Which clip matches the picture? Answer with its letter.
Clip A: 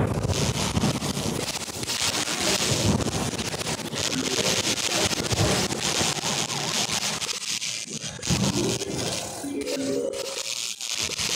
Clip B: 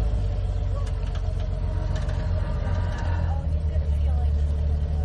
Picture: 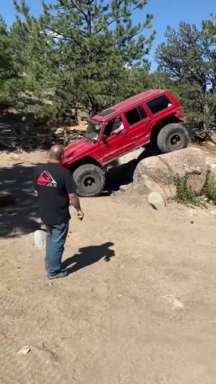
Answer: B